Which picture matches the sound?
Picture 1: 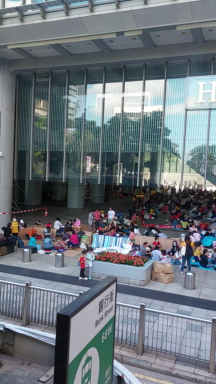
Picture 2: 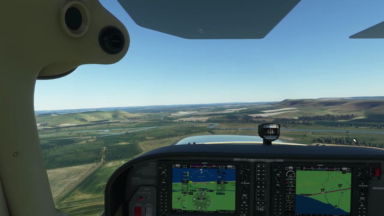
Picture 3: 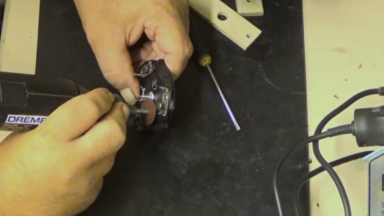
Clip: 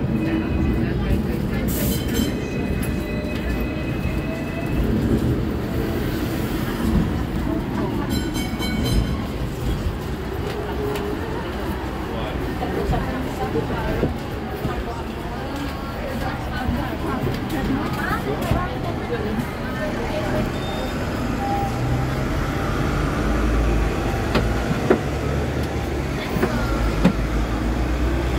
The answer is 1